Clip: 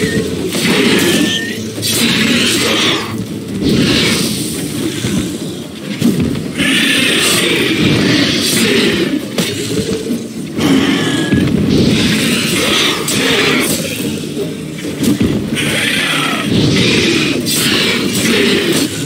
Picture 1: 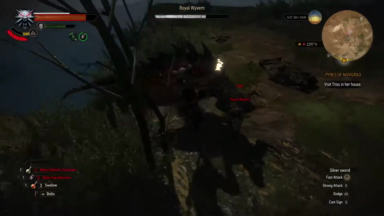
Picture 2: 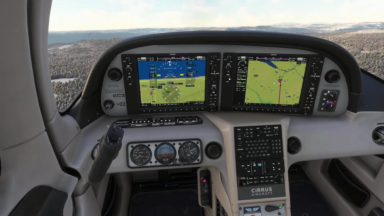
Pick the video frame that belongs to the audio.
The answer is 1